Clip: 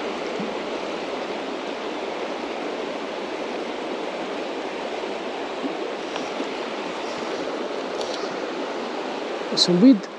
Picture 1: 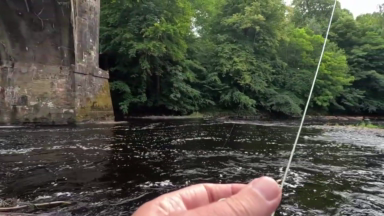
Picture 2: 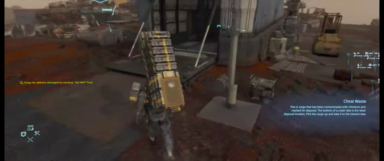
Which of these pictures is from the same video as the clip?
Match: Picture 1